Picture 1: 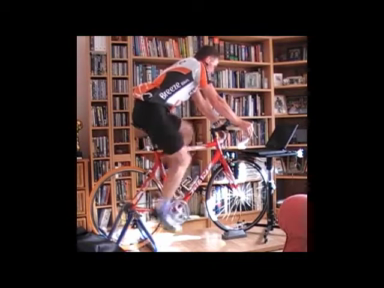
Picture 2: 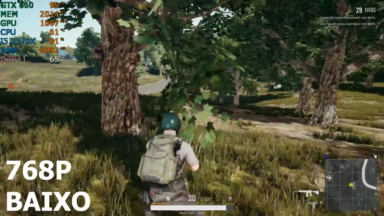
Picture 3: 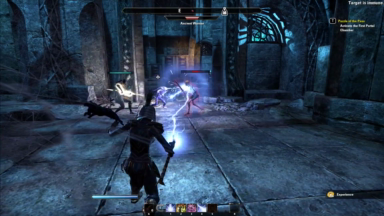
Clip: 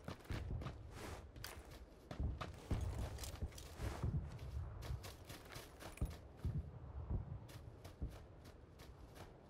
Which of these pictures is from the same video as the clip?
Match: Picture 2